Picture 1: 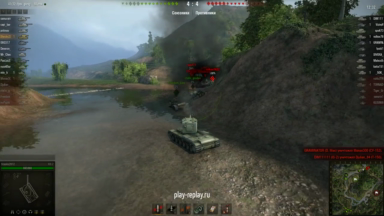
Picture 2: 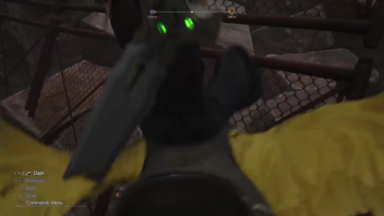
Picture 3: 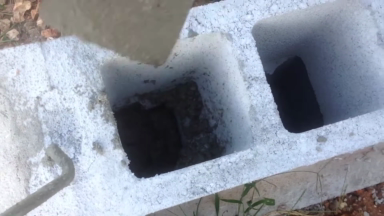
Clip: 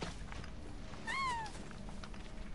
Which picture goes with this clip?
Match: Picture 2